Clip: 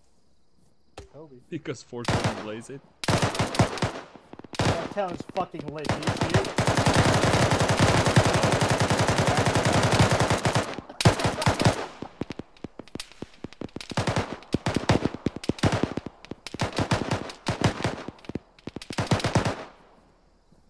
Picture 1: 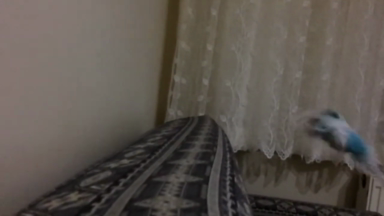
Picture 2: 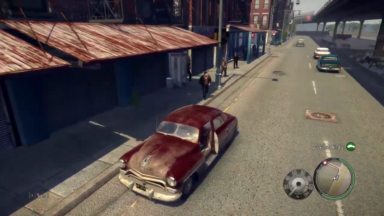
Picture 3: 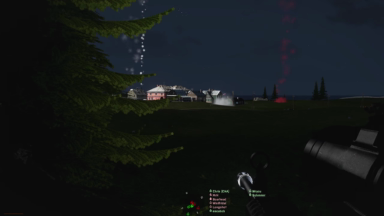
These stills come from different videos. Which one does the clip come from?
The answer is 3